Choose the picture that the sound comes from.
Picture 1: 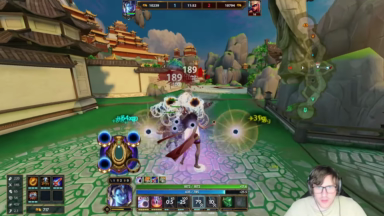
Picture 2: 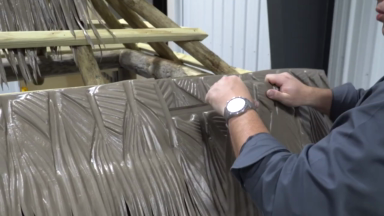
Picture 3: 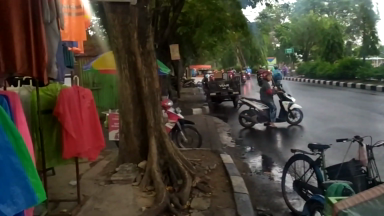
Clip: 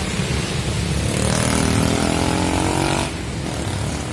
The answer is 3